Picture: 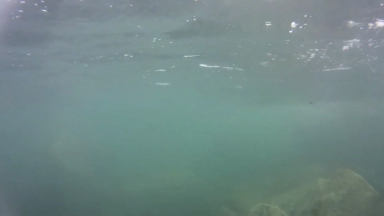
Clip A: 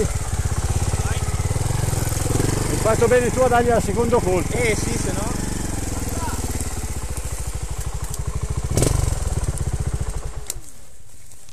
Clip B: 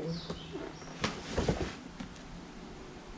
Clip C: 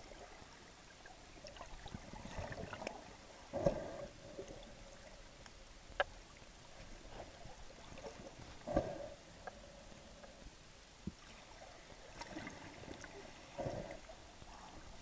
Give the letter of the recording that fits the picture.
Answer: C